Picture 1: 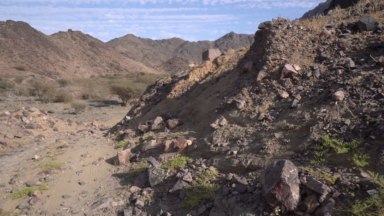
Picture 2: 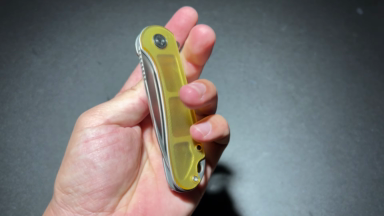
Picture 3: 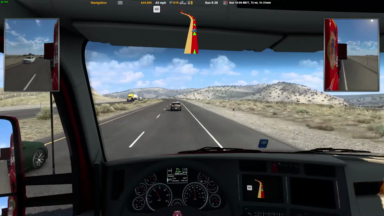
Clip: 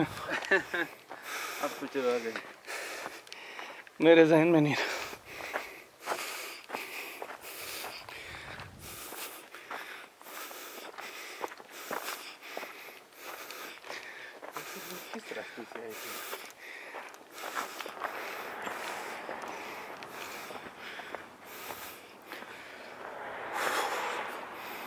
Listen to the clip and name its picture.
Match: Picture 1